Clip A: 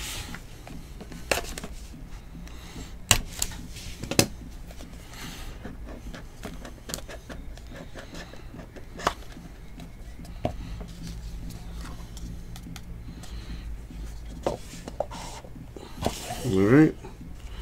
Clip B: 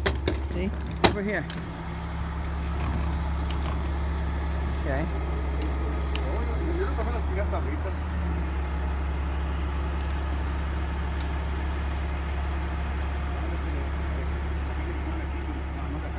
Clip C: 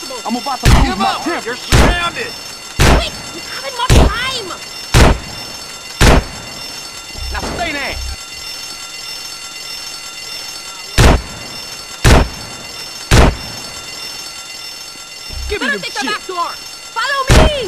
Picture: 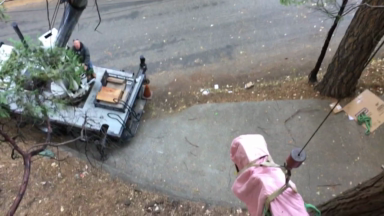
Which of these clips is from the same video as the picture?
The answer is B